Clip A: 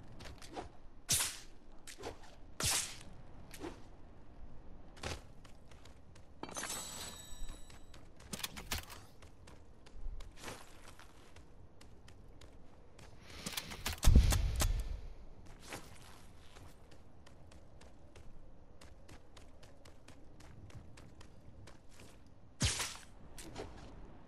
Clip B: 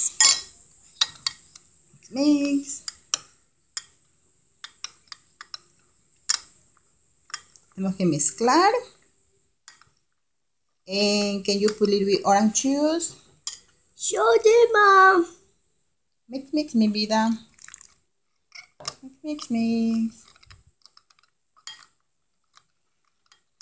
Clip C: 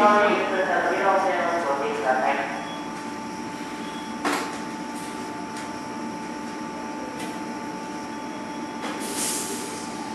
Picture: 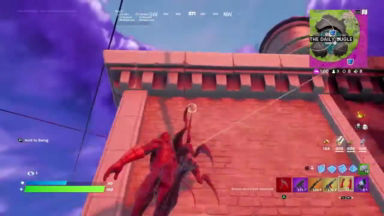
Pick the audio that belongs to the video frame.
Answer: A